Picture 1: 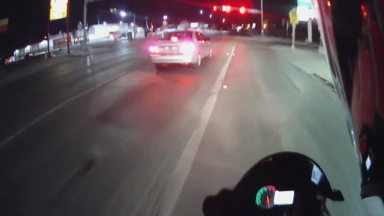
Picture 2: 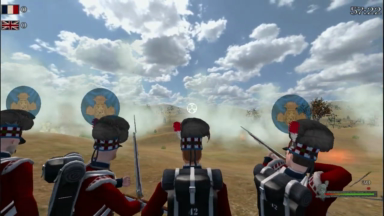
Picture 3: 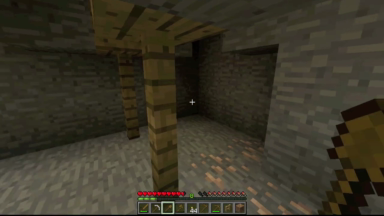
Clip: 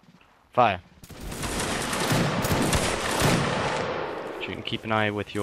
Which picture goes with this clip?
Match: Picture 2